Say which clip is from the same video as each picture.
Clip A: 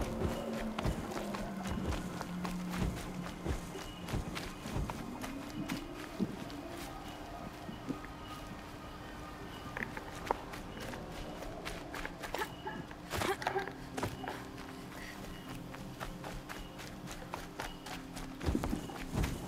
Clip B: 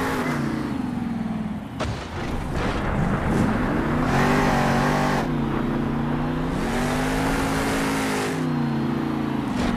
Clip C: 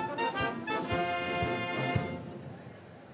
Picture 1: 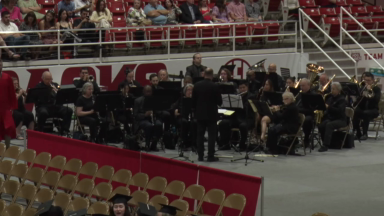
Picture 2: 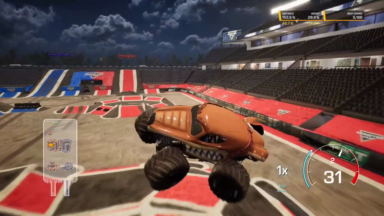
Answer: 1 C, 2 B